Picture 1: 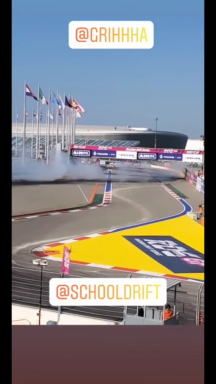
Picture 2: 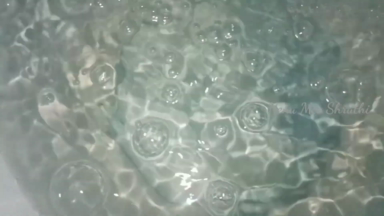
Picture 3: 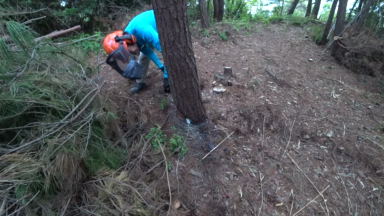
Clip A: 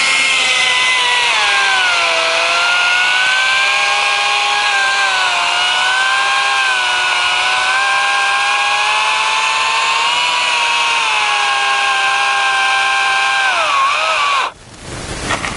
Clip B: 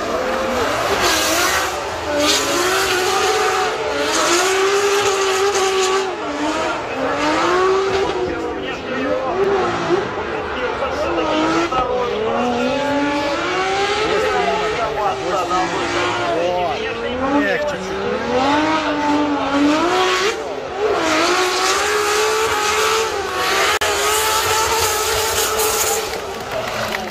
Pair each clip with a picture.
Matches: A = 3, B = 1